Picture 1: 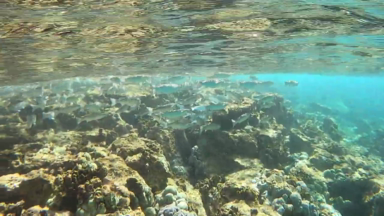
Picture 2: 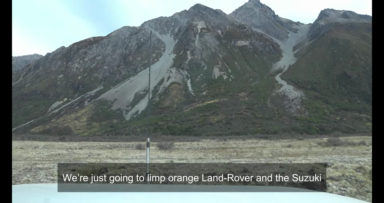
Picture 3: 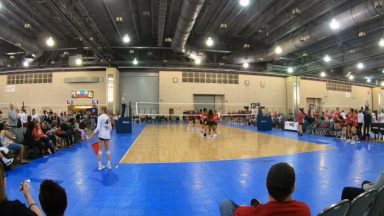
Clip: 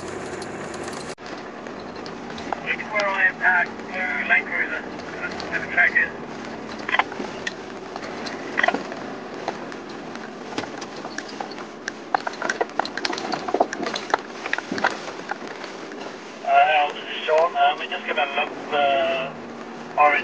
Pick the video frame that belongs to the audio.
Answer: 2